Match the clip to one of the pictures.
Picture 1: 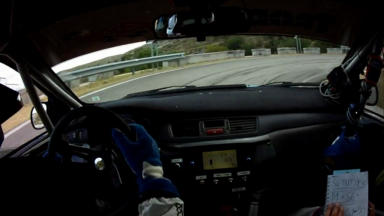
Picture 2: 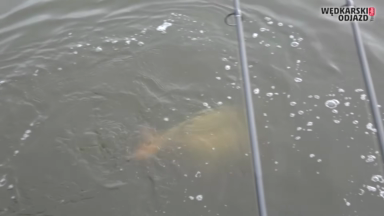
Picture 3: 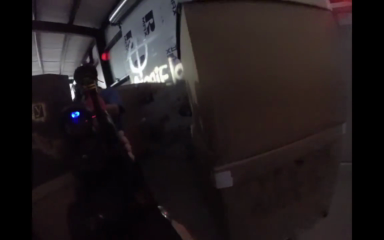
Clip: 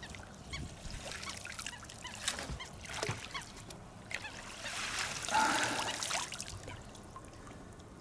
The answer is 2